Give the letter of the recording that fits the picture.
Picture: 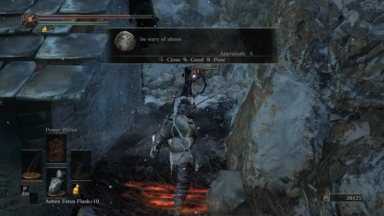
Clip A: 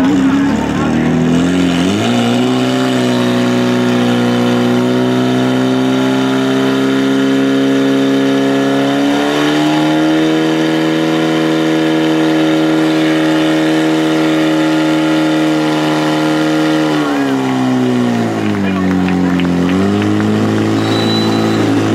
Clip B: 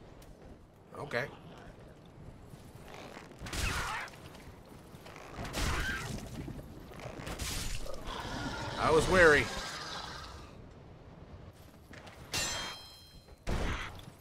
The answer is B